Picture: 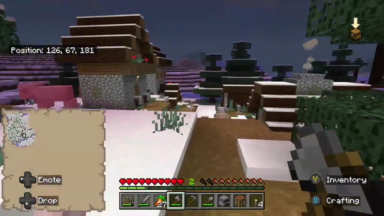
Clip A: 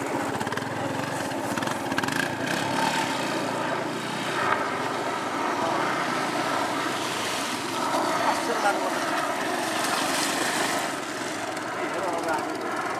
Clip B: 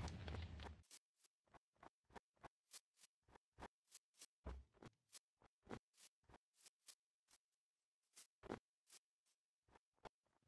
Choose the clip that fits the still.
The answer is B